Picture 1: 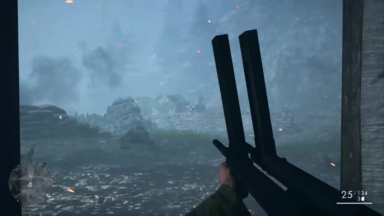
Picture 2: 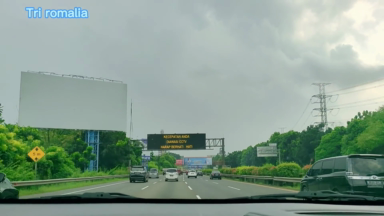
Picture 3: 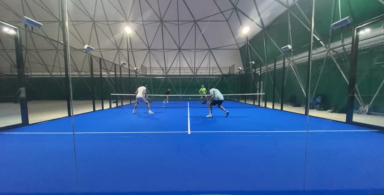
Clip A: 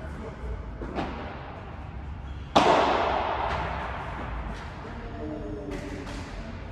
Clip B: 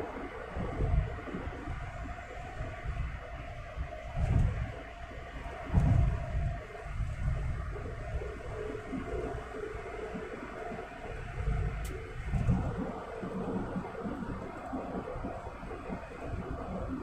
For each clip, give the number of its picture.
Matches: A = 3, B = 2